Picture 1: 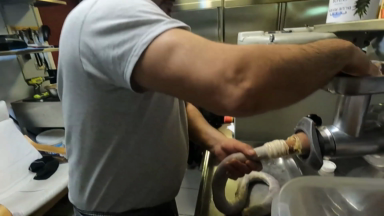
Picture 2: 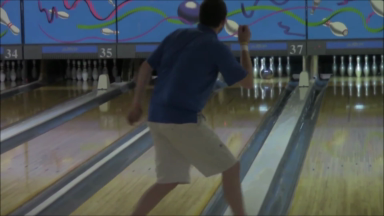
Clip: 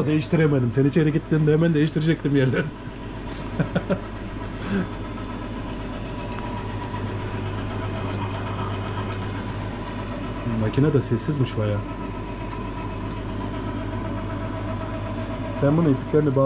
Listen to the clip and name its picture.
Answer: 1